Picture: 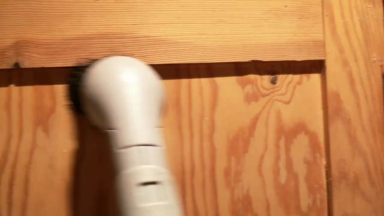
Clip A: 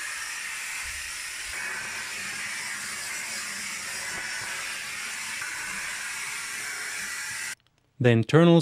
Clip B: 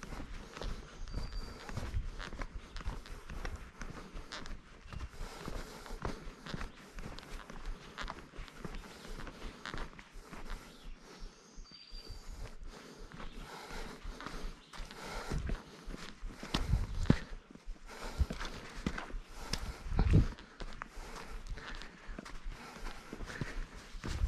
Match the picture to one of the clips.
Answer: A